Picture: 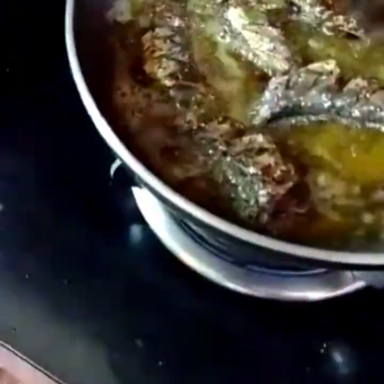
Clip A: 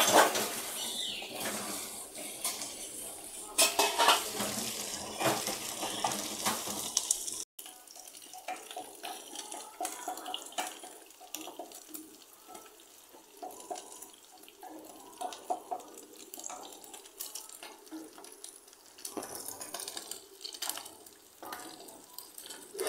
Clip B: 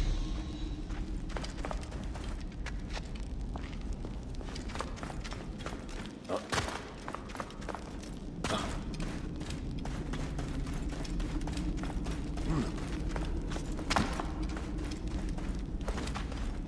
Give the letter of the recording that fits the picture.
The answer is A